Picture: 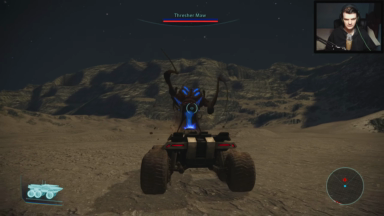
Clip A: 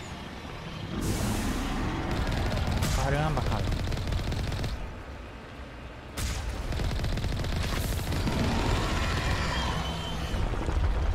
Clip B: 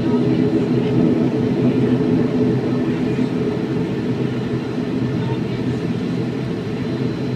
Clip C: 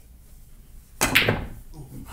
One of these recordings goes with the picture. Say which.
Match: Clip A